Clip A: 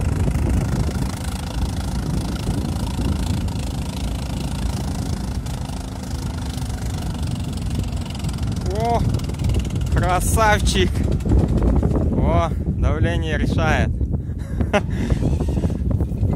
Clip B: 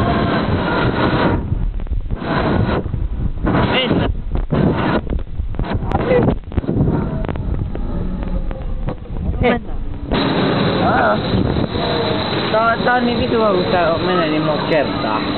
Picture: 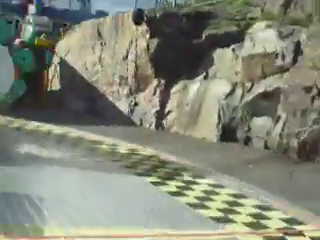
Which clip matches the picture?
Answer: B